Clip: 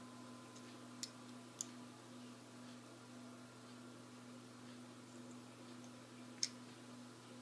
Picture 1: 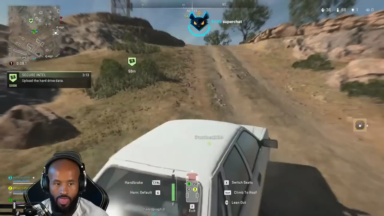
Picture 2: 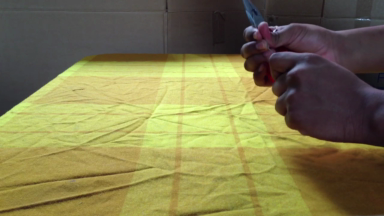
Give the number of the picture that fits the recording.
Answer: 2